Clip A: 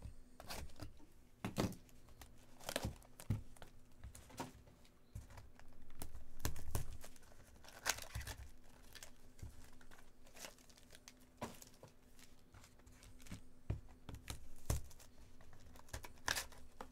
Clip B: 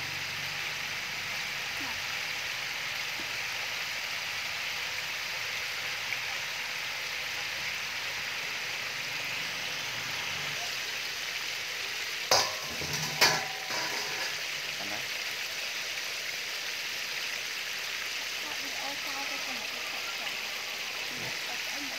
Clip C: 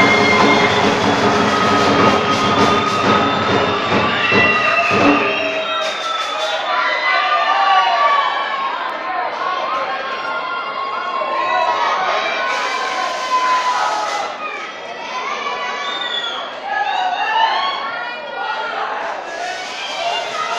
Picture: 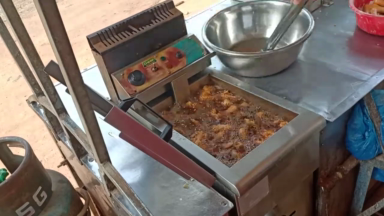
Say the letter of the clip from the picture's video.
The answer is B